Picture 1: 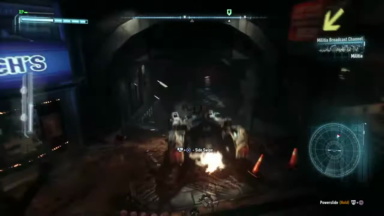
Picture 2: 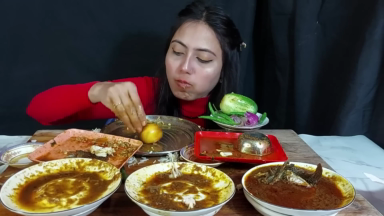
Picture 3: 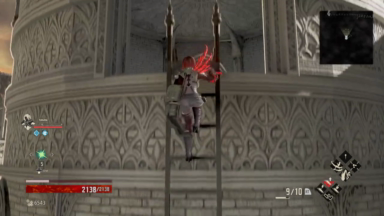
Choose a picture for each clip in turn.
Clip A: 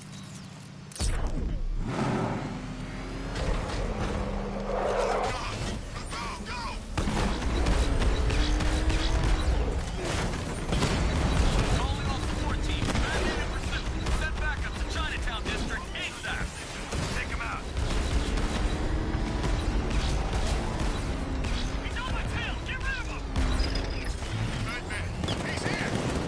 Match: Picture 1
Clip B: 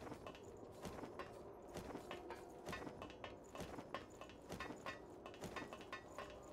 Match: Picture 3